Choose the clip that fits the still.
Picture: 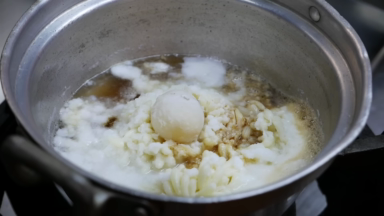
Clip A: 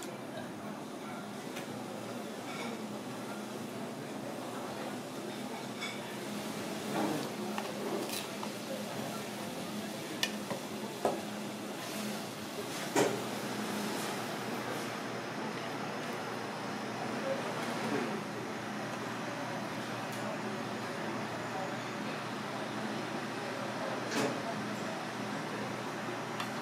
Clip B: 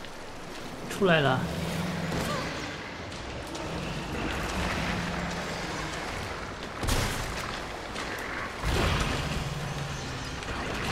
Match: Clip A